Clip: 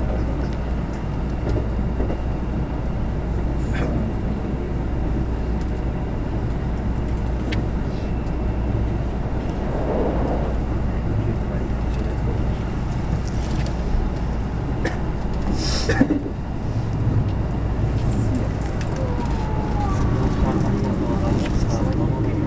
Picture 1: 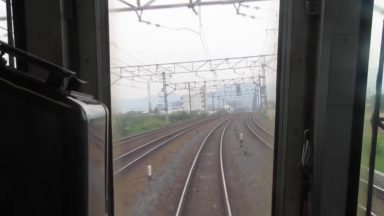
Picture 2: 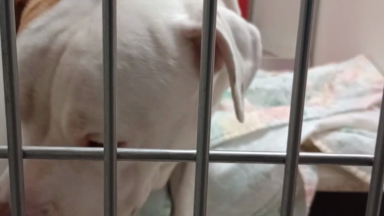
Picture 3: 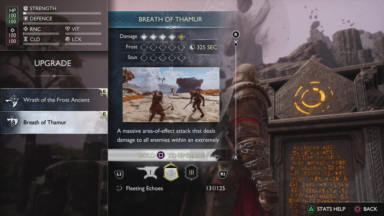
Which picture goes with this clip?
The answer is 1